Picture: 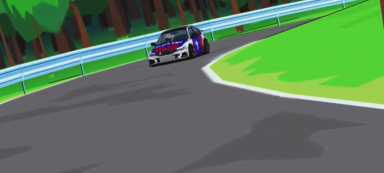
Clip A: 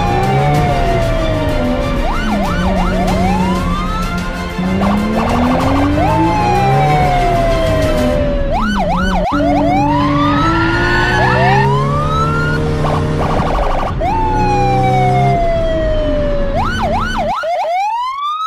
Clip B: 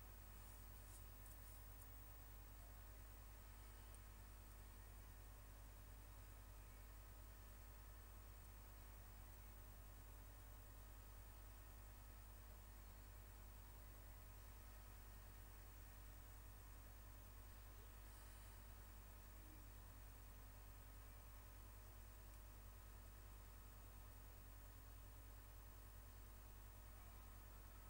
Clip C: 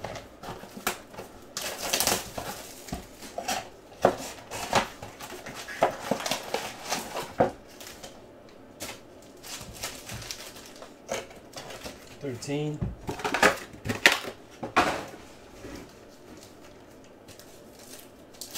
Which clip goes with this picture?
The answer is A